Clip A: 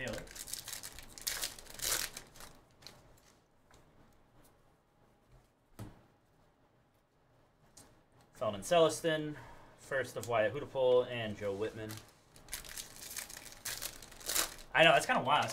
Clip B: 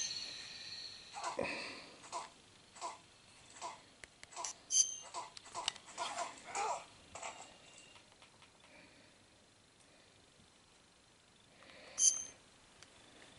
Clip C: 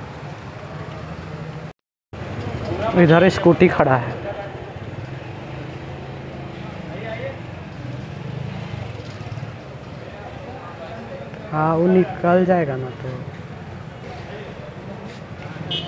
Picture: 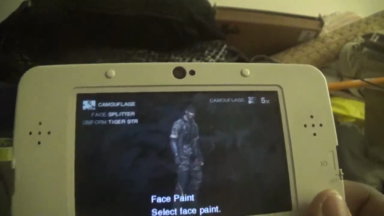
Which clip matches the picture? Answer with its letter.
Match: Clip B